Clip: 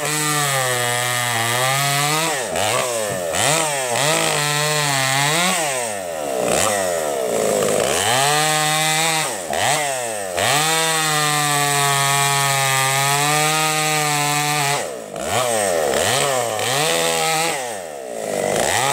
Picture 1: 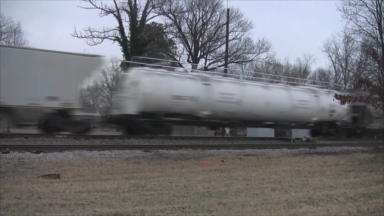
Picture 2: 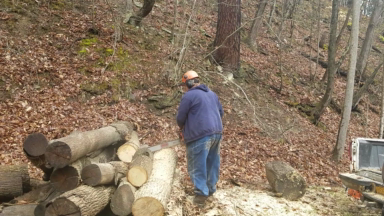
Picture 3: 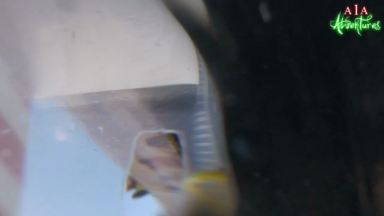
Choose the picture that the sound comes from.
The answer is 2